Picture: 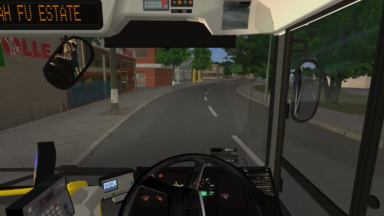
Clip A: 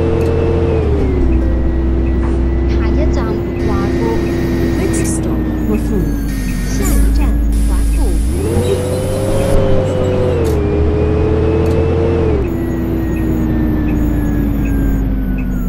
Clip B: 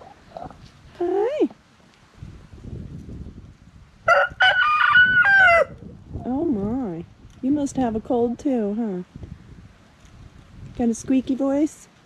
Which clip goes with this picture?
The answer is A